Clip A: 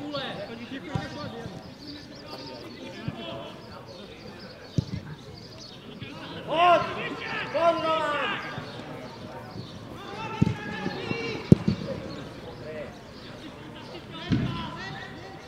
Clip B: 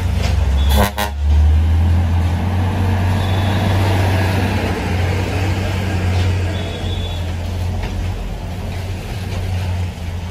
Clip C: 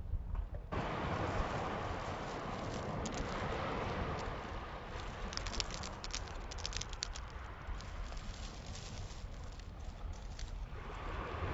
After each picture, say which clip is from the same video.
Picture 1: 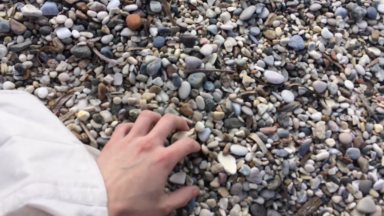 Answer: C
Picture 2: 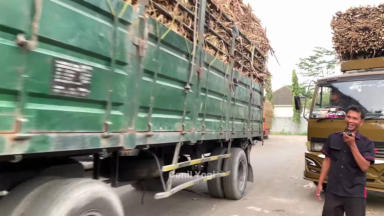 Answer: B